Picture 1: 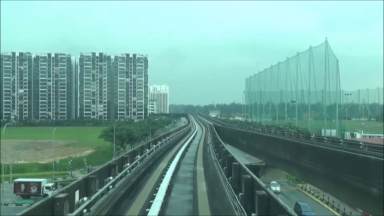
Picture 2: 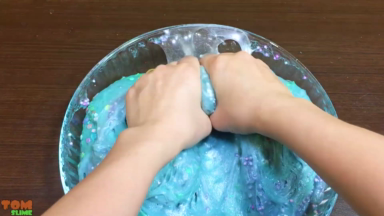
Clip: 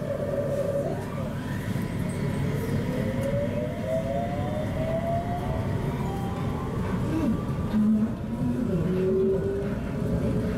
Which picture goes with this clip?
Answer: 1